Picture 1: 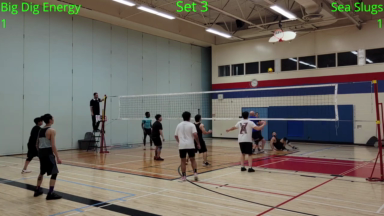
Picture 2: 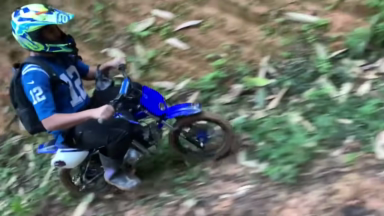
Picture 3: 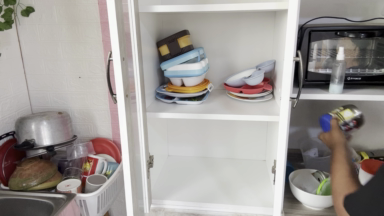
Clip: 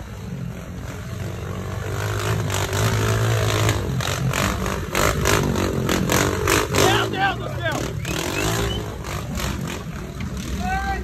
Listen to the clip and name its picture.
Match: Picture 2